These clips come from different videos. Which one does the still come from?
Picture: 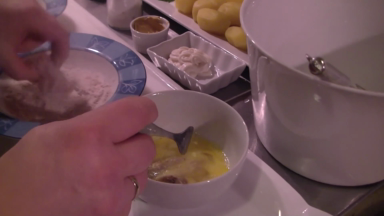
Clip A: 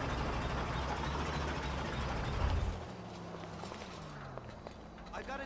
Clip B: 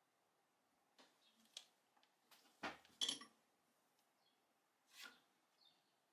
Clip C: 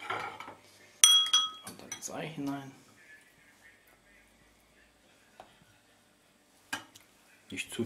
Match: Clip C